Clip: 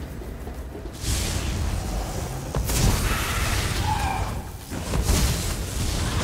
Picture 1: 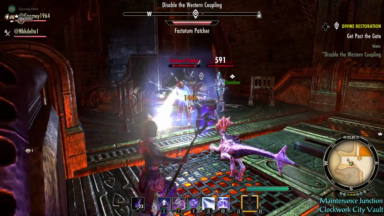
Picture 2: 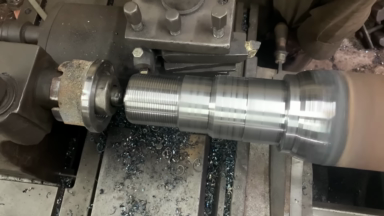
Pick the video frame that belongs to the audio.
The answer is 1